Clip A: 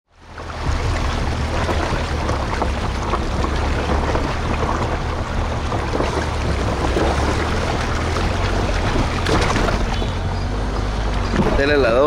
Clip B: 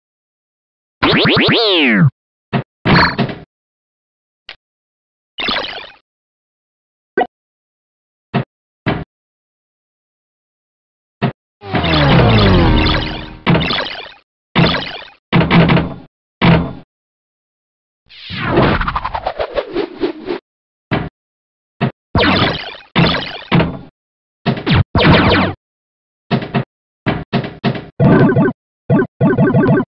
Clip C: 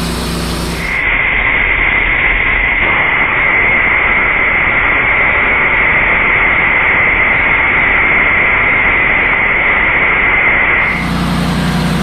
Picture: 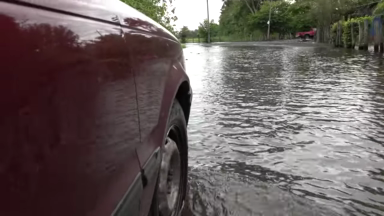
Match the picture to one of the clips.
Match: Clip A